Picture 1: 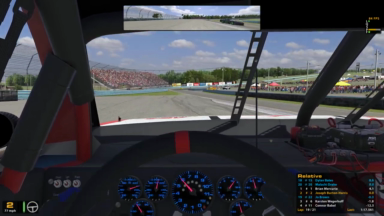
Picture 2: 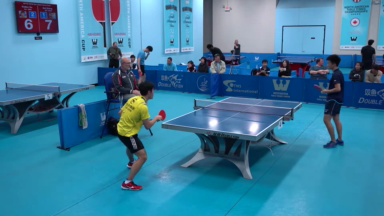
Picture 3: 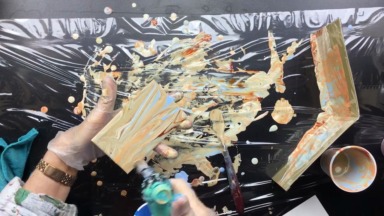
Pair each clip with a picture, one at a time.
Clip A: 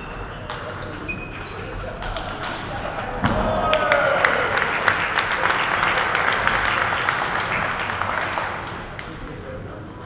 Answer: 2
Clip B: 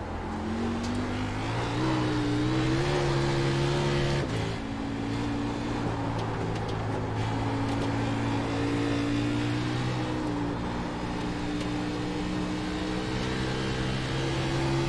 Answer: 1